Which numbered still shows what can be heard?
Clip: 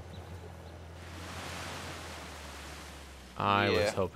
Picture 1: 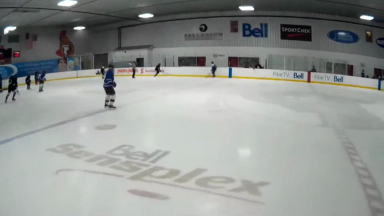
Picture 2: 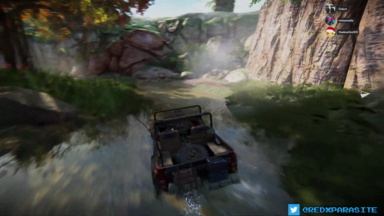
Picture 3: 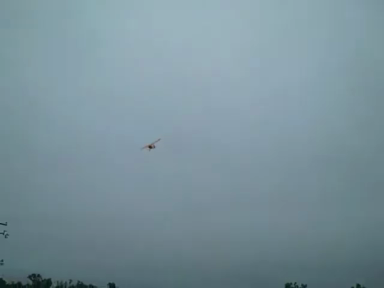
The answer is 2